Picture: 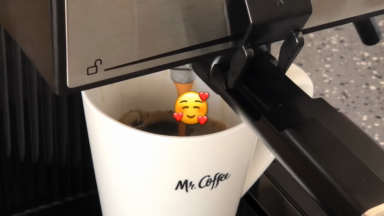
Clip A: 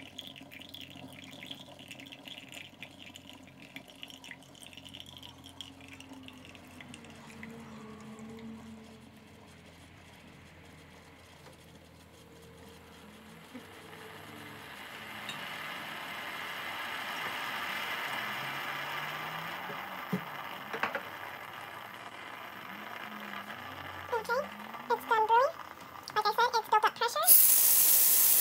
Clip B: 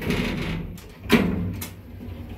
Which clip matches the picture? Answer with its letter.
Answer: A